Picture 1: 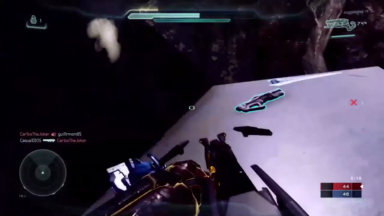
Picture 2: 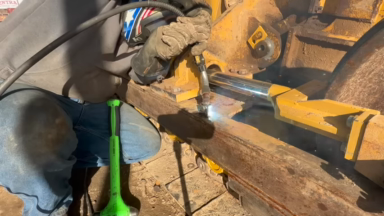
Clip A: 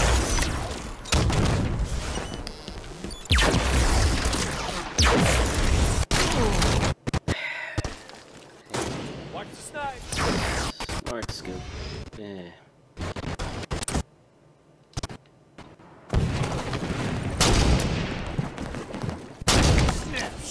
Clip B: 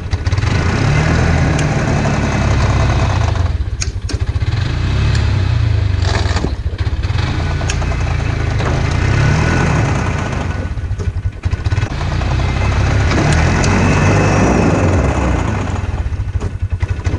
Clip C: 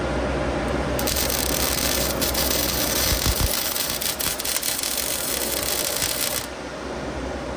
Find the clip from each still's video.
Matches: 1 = A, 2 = C